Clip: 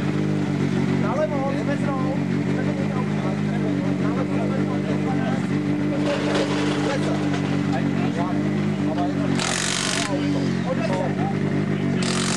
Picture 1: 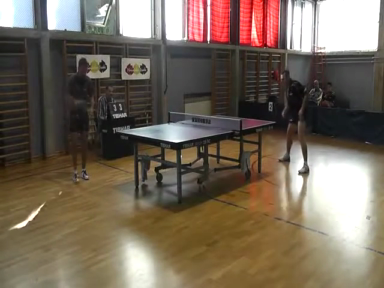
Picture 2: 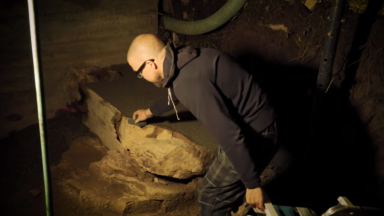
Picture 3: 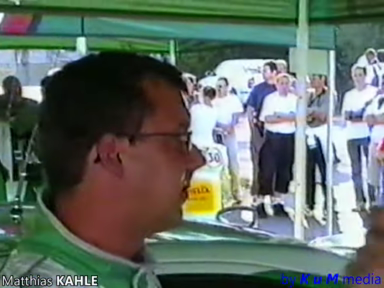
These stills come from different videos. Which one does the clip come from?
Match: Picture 3